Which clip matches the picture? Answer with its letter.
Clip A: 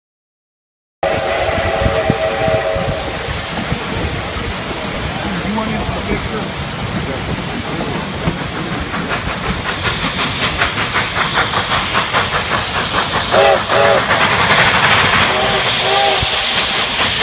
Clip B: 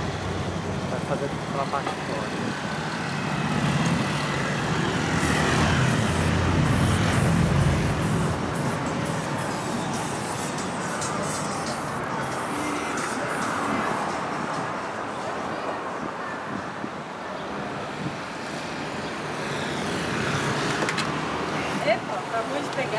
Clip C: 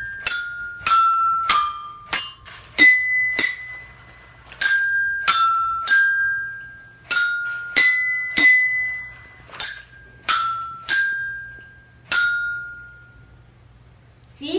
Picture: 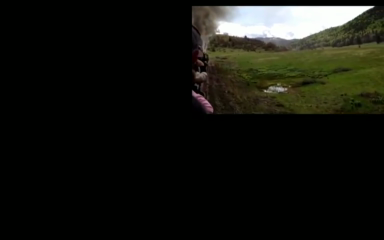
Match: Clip A